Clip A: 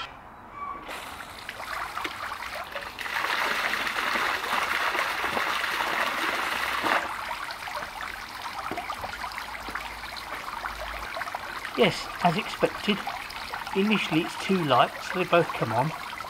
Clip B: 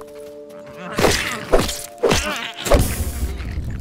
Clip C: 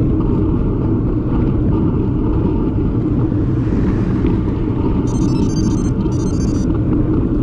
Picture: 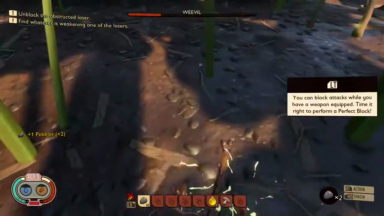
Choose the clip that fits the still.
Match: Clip B